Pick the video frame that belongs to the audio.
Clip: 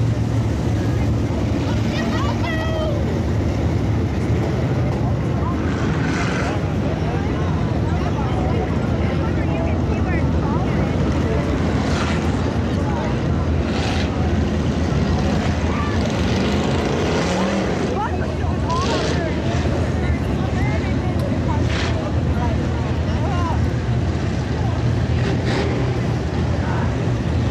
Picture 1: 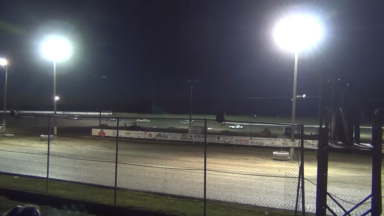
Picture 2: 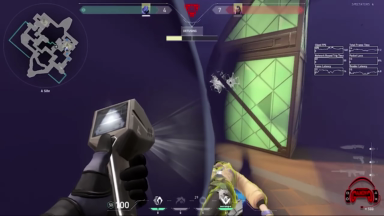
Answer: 1